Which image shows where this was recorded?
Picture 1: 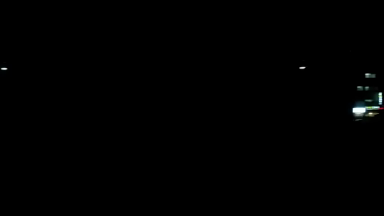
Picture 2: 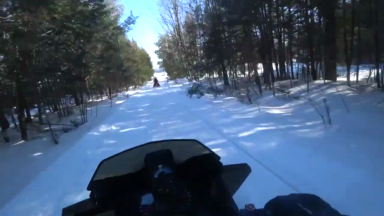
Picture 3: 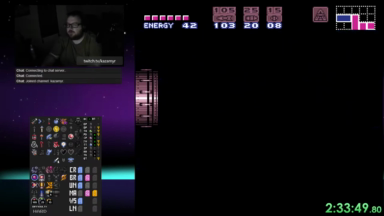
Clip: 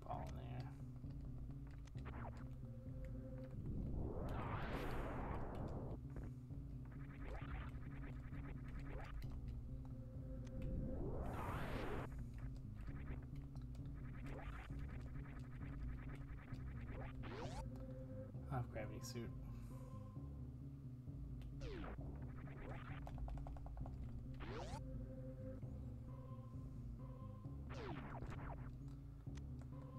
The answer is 3